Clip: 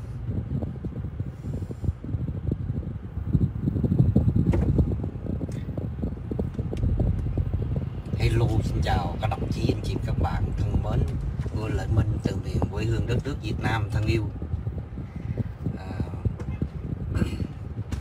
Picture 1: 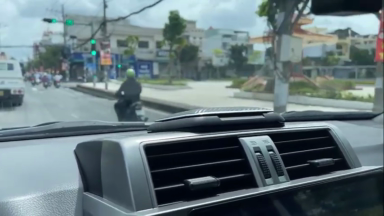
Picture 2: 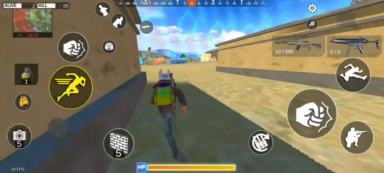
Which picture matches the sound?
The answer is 1